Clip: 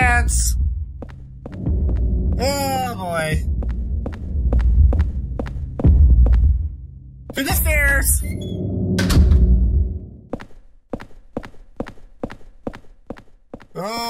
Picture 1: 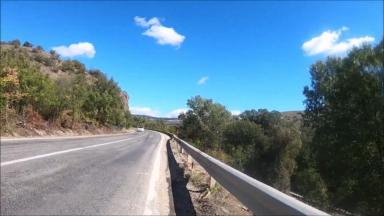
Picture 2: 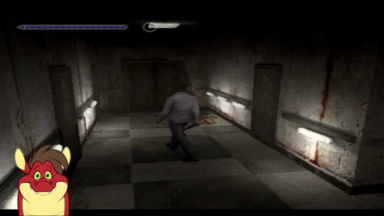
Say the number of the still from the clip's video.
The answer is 2